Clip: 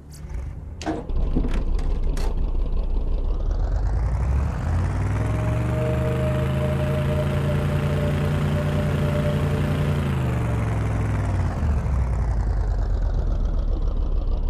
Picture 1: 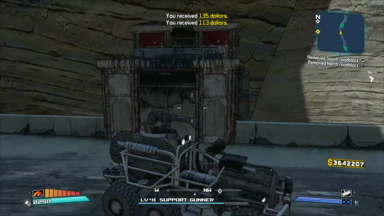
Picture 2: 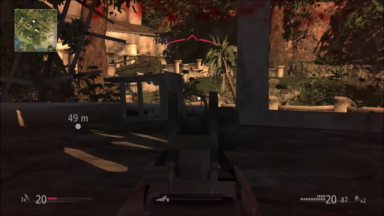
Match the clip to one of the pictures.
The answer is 1